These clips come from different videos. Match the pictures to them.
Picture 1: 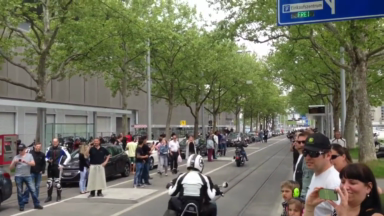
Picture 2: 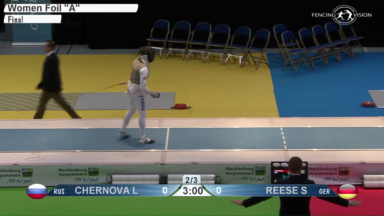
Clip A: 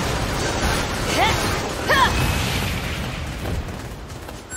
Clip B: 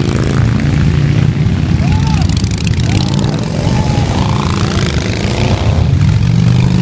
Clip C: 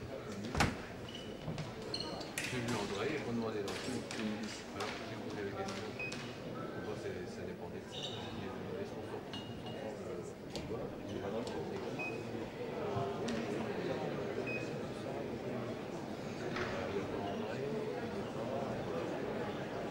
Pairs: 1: B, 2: C